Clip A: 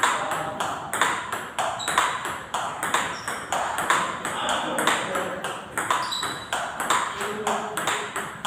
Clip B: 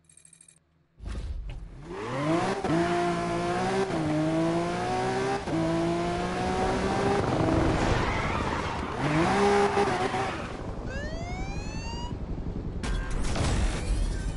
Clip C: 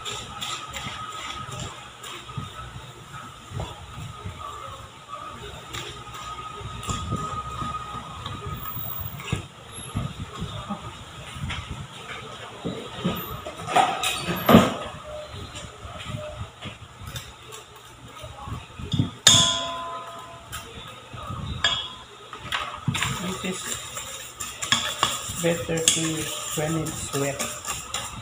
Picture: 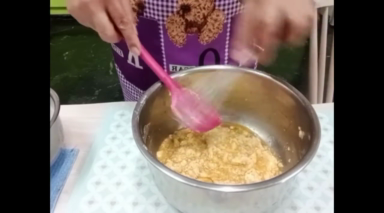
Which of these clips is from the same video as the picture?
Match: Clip C